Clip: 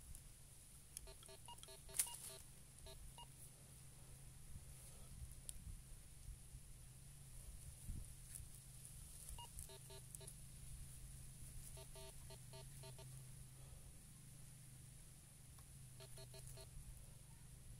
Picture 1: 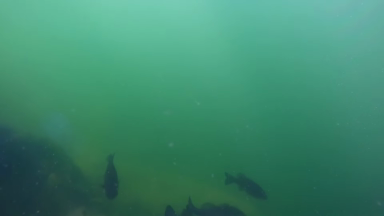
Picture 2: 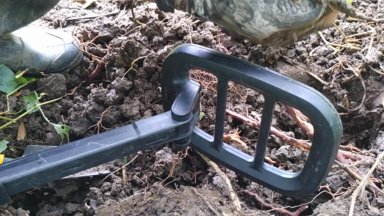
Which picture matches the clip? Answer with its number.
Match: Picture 2